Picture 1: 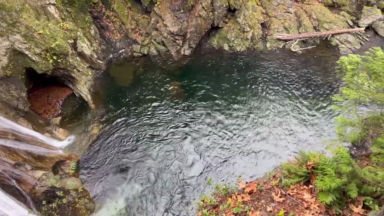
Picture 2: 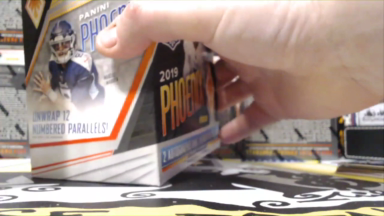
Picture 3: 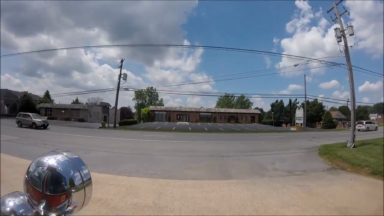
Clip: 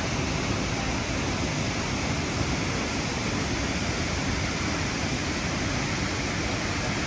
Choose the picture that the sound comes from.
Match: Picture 1